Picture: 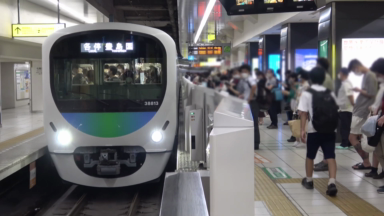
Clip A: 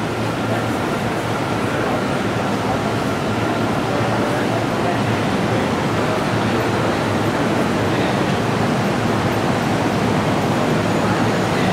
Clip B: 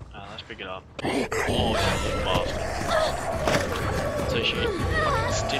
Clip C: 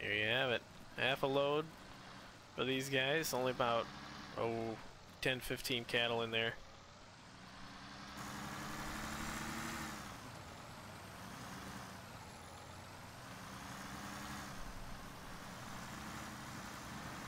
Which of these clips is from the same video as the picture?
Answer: A